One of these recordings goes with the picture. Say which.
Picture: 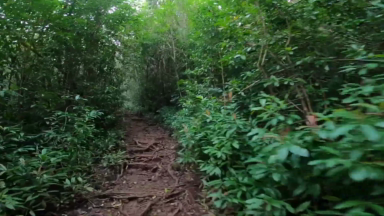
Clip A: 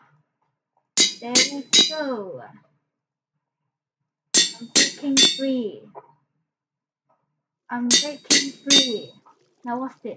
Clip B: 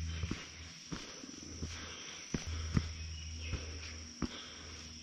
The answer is B